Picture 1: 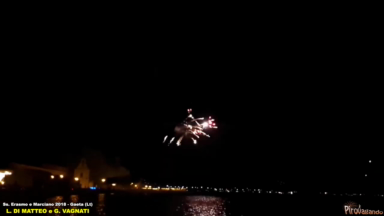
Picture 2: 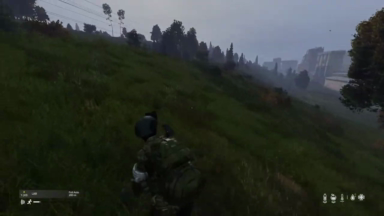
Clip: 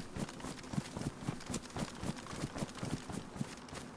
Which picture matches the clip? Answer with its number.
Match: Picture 2